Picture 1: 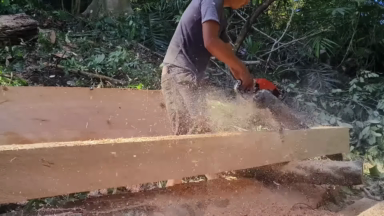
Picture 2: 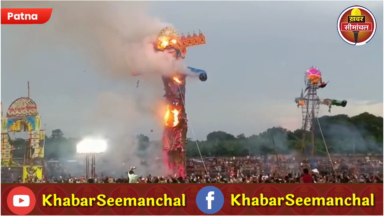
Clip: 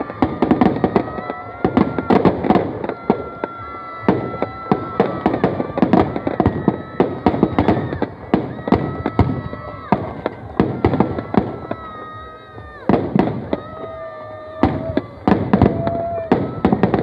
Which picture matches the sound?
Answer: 2